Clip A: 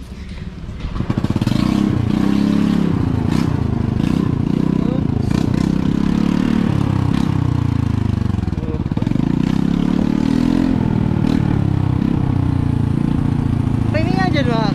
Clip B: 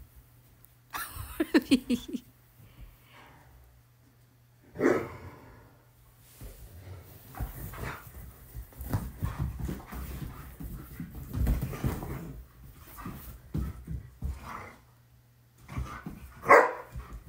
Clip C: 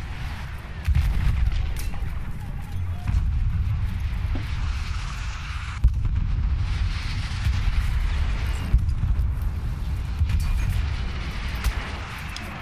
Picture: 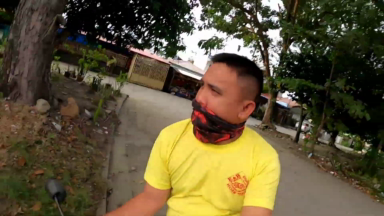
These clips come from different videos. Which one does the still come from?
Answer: A